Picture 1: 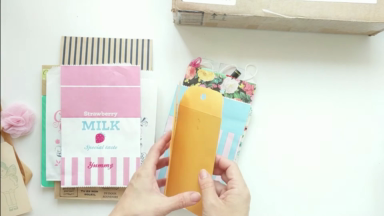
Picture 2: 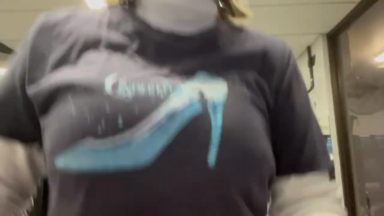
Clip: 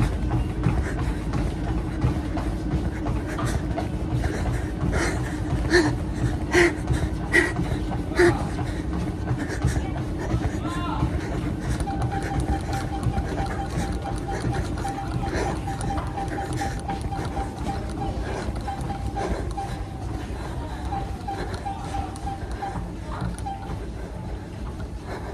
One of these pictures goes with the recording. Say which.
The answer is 2